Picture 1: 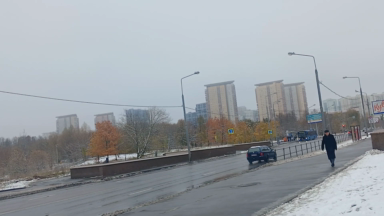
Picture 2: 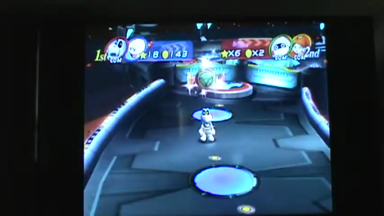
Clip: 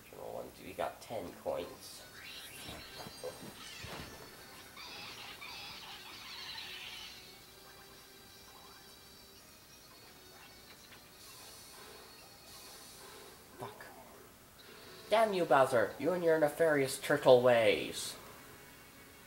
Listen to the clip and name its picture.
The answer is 2